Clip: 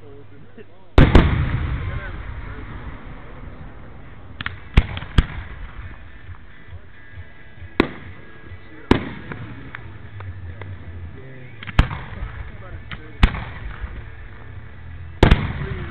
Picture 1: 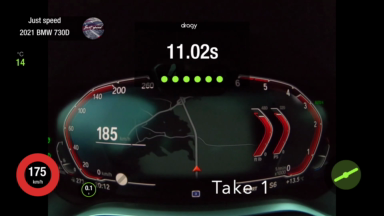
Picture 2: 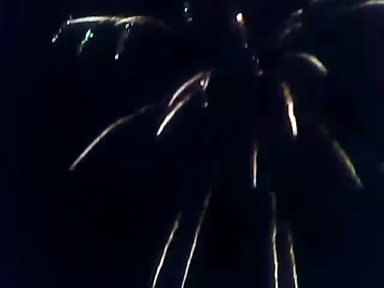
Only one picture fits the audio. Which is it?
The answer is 2